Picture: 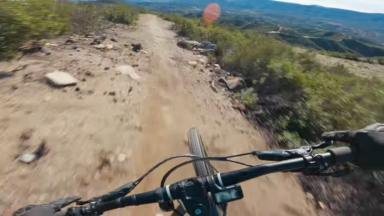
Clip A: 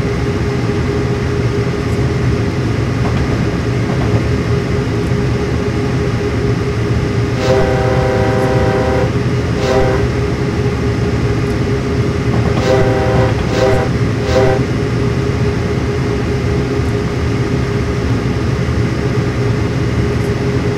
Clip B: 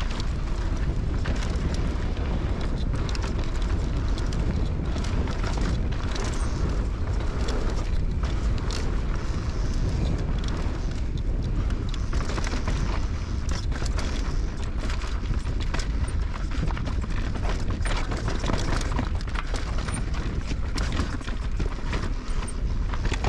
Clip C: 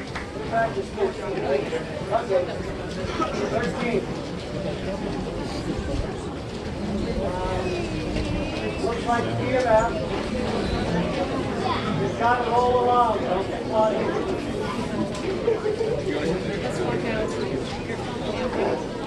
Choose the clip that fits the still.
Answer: B